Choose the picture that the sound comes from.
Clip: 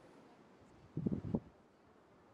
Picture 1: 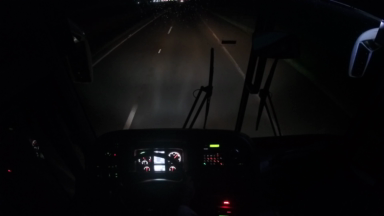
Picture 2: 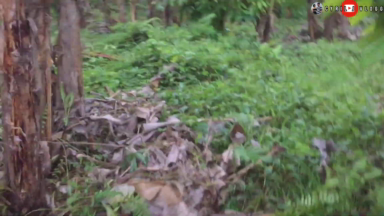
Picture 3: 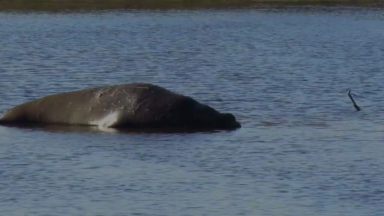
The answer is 3